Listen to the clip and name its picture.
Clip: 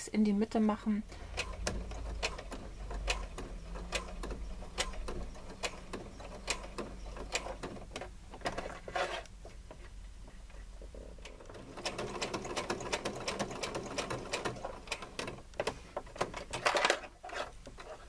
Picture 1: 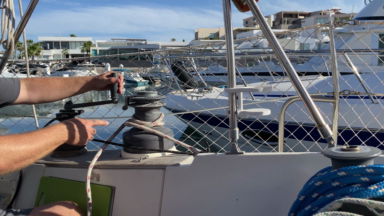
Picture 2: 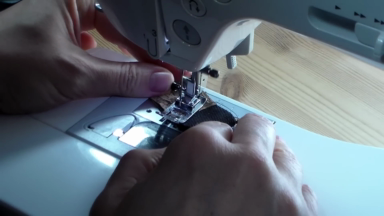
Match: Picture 2